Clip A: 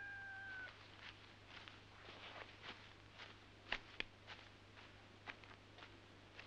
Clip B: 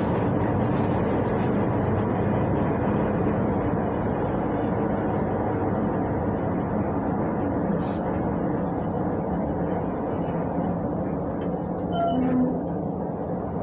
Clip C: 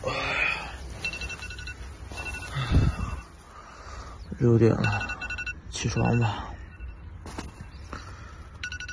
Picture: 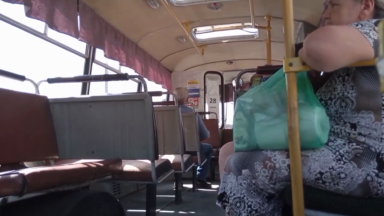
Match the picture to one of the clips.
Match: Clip B